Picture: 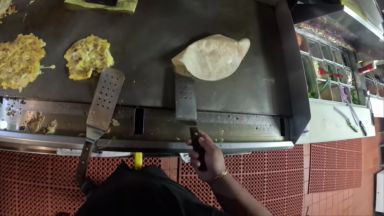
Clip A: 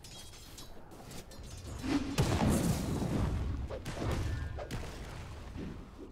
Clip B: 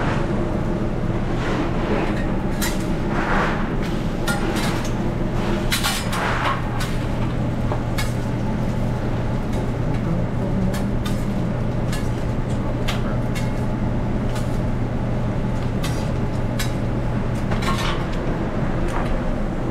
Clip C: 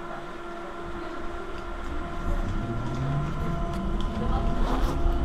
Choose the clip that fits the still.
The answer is B